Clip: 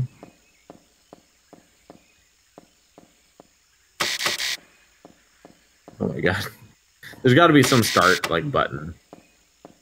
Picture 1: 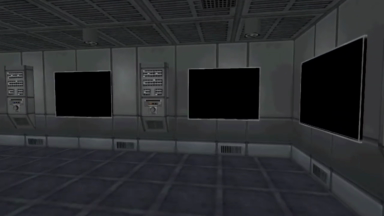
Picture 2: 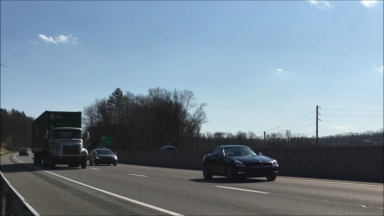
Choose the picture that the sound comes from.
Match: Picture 1